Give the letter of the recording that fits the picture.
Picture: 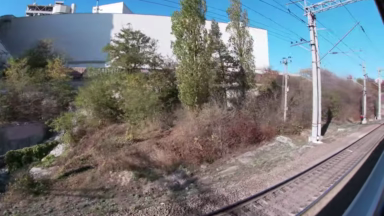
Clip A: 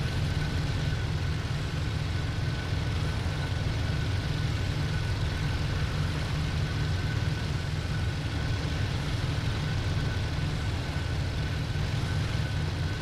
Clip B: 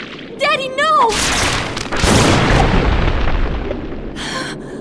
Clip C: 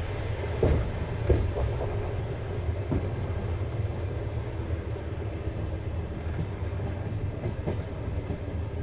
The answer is C